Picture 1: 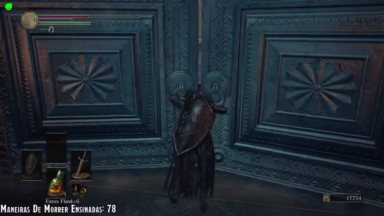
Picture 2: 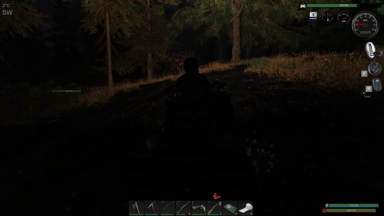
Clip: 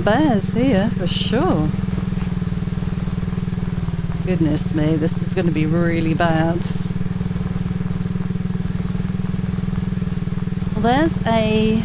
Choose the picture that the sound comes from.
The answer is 2